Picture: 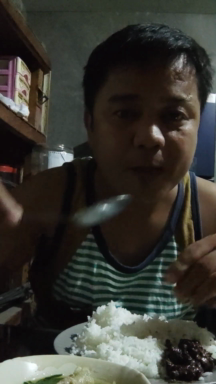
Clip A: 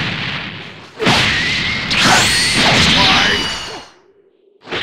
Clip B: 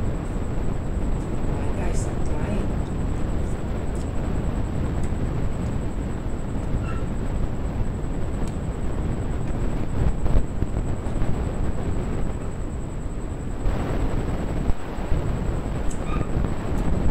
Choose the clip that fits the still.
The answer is B